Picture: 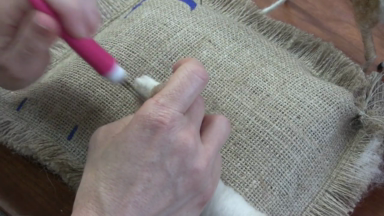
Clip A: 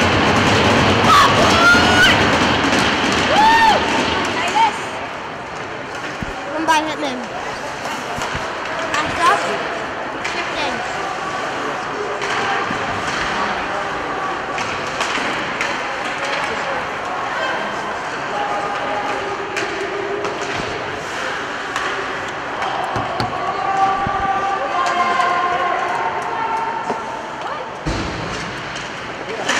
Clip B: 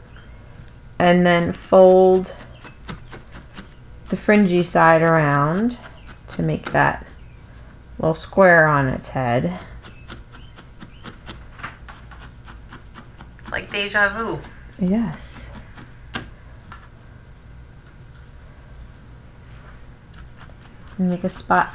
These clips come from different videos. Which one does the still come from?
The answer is B